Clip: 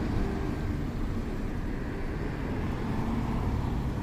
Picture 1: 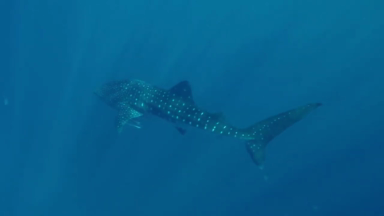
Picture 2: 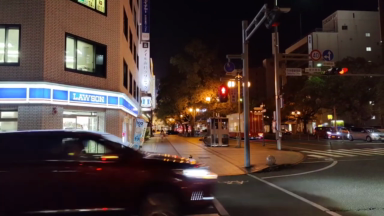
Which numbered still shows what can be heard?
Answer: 2